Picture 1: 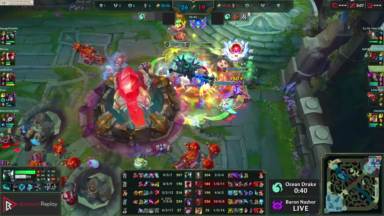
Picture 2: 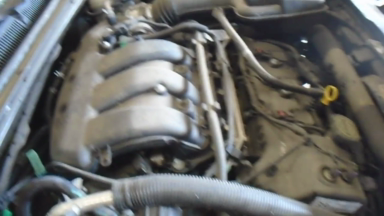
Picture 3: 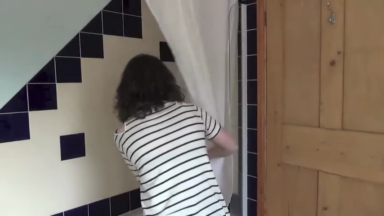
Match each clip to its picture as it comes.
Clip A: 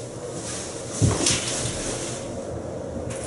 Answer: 3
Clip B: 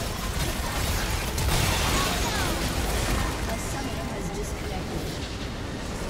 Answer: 1